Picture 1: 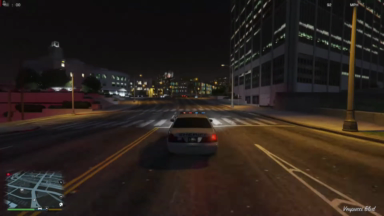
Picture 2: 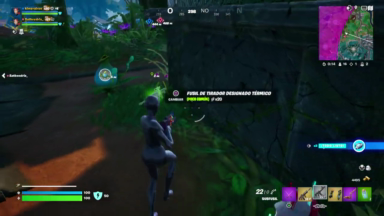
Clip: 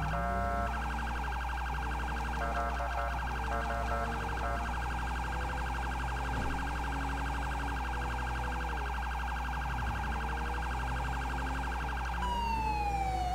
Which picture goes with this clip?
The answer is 1